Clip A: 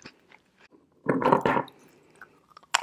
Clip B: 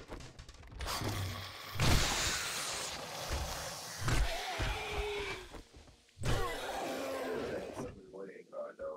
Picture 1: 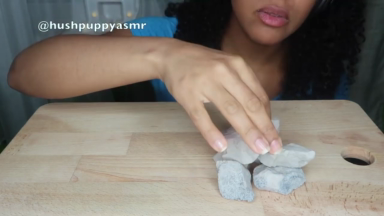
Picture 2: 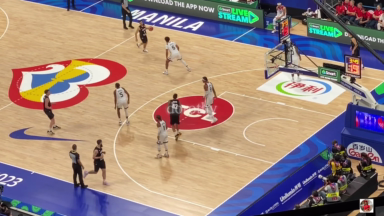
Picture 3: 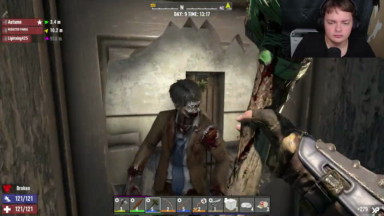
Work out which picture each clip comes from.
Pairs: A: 1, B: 3